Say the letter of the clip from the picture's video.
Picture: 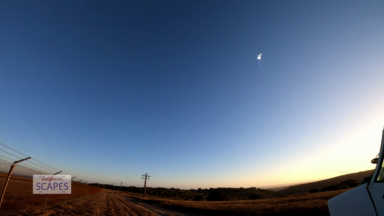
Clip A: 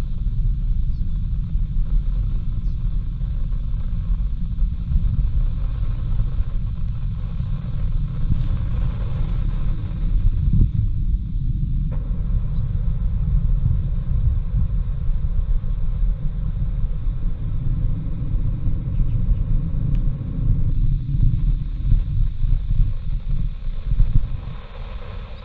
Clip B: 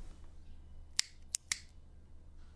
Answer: A